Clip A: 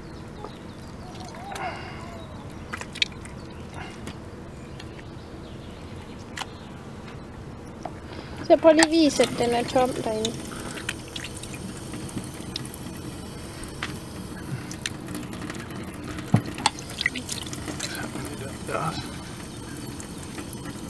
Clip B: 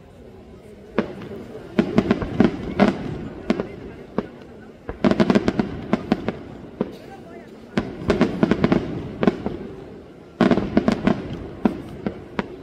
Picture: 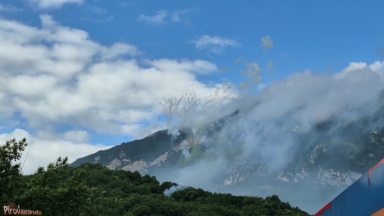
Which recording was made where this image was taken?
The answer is B